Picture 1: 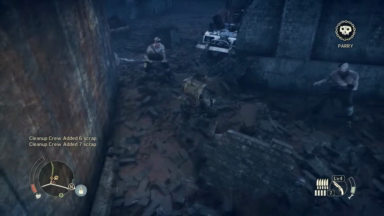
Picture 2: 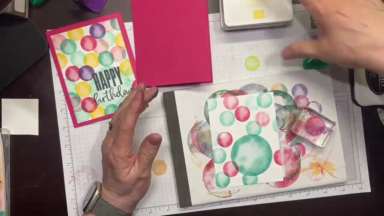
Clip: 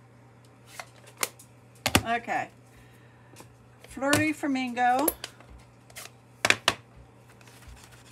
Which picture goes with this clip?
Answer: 2